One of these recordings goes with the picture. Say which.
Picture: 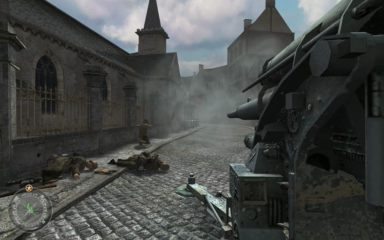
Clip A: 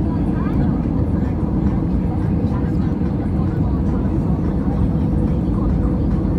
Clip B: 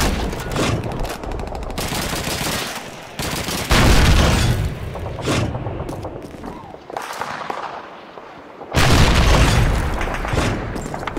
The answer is B